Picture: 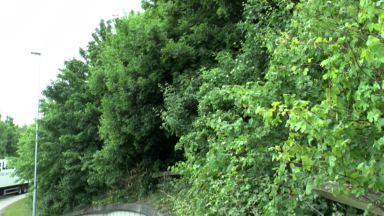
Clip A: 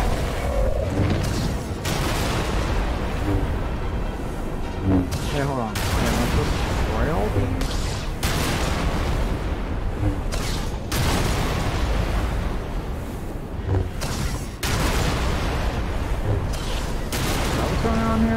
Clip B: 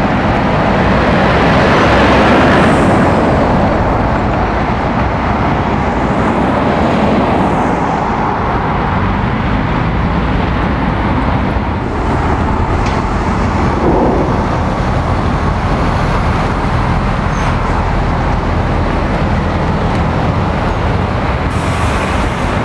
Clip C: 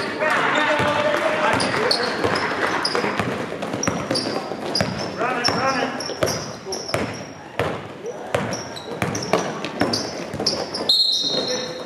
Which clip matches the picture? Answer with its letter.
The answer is B